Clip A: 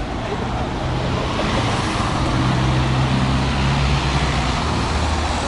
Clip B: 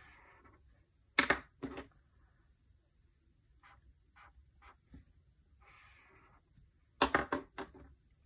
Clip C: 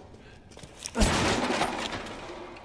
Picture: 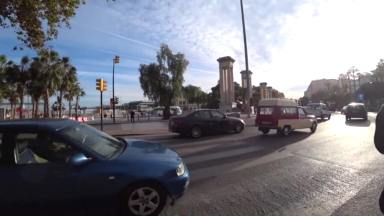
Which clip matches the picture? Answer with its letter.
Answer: A